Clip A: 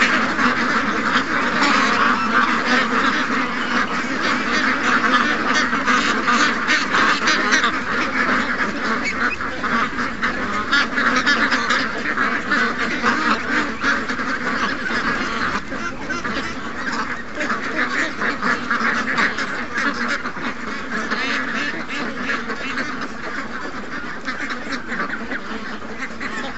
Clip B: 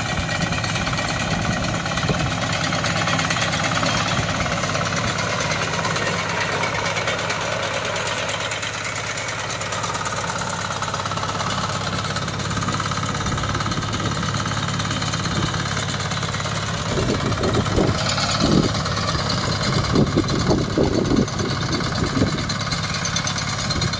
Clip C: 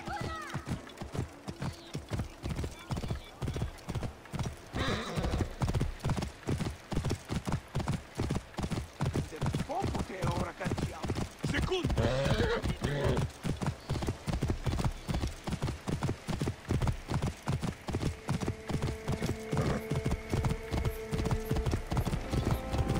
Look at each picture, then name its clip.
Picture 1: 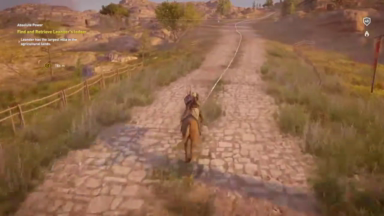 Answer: C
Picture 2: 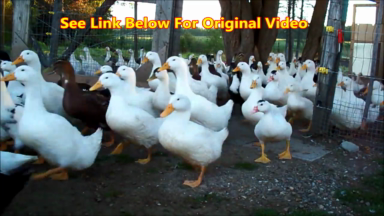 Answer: A